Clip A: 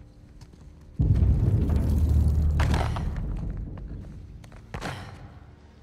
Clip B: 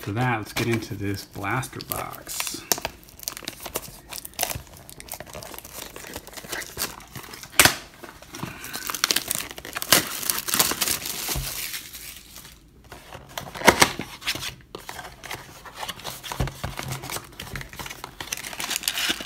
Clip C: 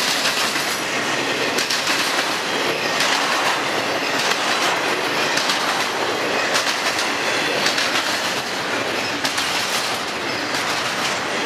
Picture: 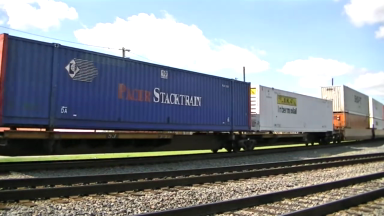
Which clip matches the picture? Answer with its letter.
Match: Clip C